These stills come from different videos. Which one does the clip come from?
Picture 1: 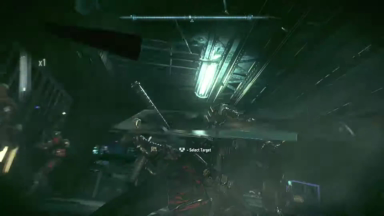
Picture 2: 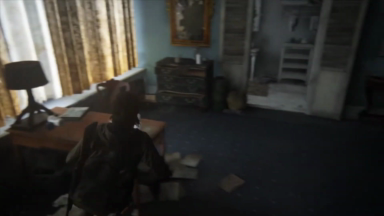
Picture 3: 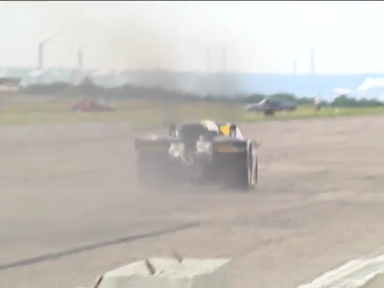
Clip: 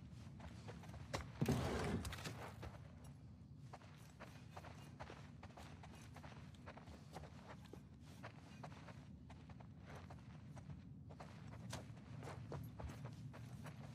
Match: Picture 2